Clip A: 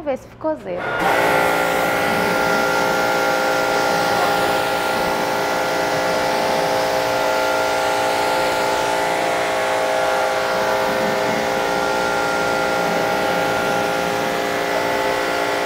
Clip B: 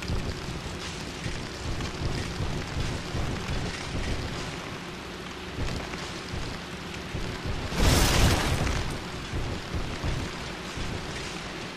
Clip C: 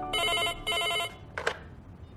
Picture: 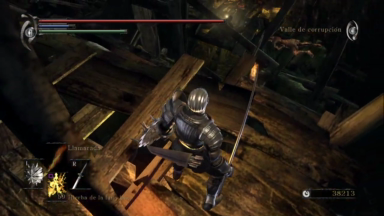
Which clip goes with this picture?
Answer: B